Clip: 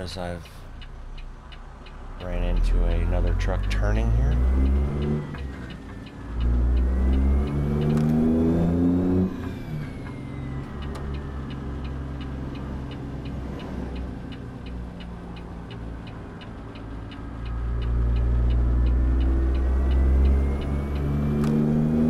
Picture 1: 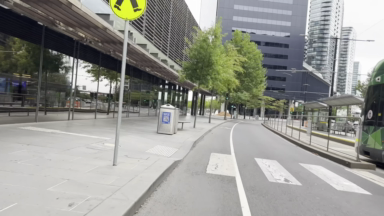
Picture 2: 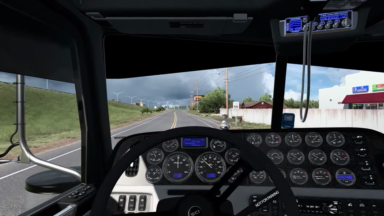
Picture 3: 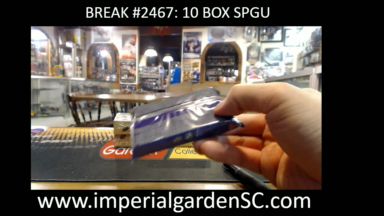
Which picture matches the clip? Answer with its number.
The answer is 2